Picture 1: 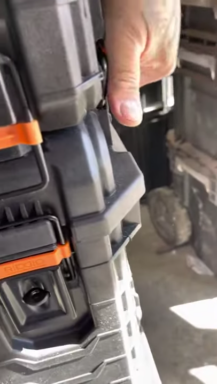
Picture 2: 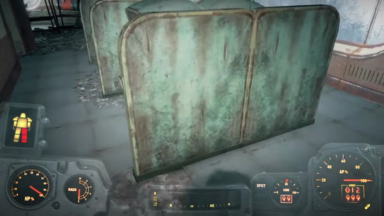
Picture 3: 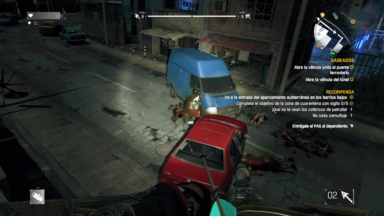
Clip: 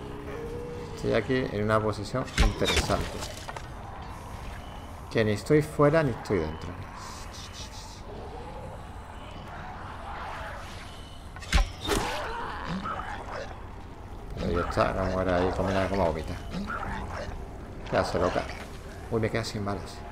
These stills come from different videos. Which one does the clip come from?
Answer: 3